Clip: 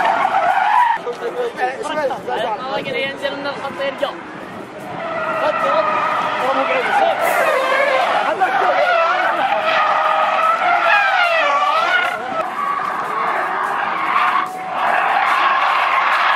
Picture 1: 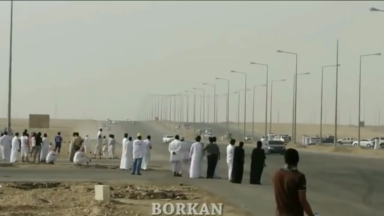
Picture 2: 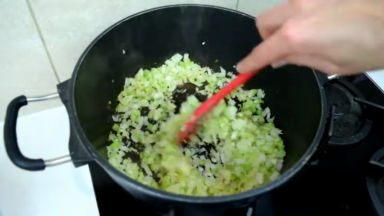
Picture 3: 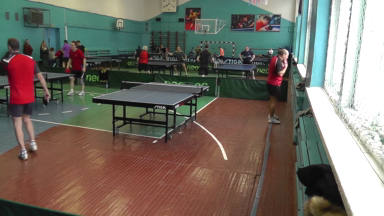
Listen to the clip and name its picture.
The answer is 1